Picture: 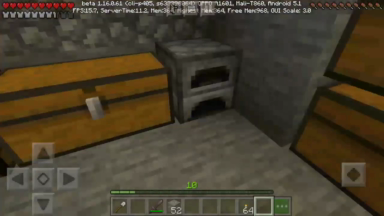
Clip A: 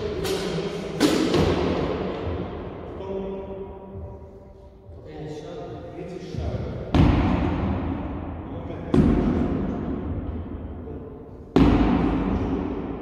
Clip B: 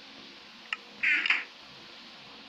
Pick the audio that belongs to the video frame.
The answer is B